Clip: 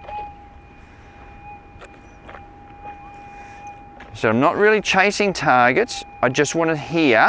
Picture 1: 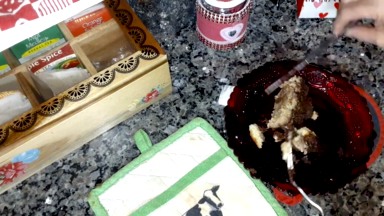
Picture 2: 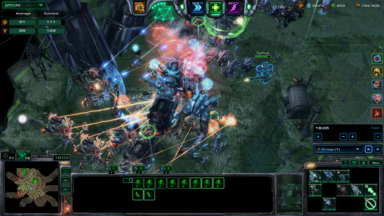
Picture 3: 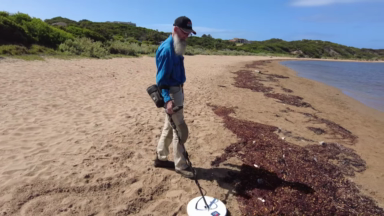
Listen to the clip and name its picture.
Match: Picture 3